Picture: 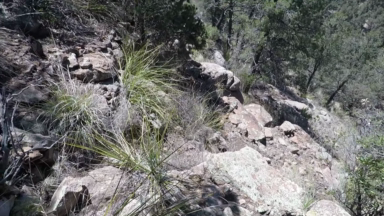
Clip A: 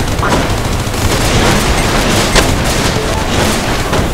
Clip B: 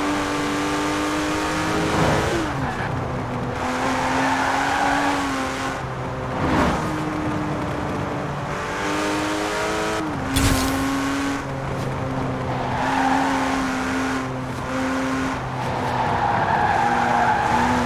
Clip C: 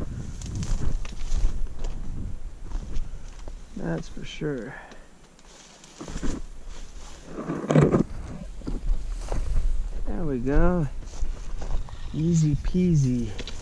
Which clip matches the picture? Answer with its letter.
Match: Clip C